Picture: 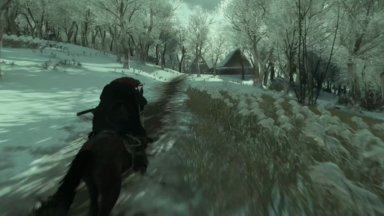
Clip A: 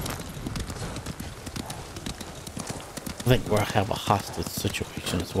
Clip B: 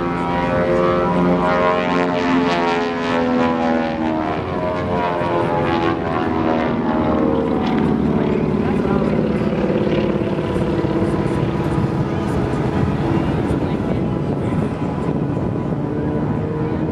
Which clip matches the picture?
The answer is A